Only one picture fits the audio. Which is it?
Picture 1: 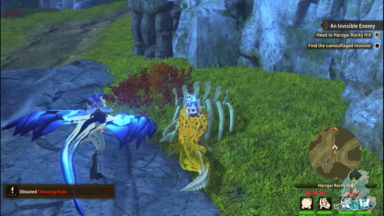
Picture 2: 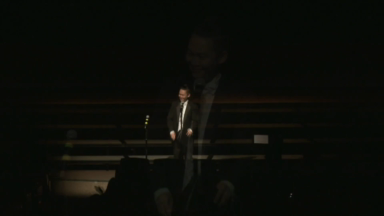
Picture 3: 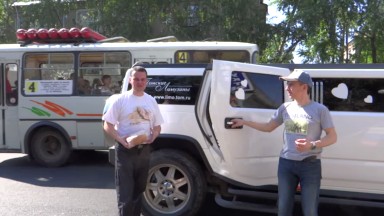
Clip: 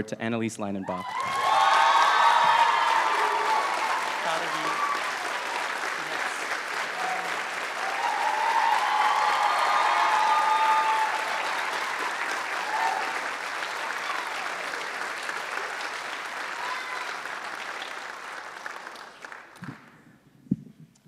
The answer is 2